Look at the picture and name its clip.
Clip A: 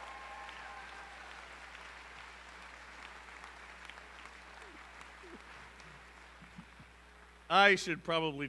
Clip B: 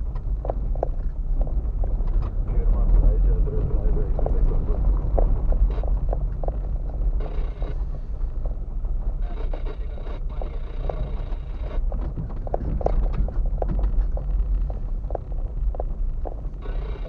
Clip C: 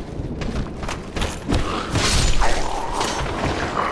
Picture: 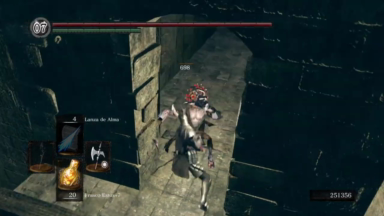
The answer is C